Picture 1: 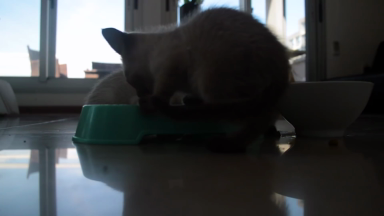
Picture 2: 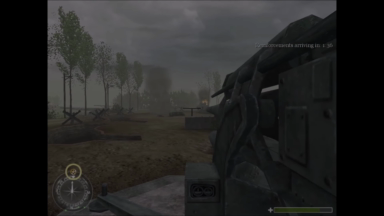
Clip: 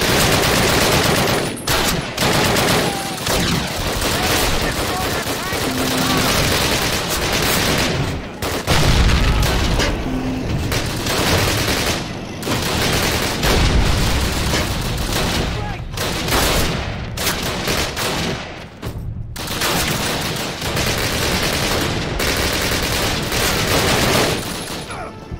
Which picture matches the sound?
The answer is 2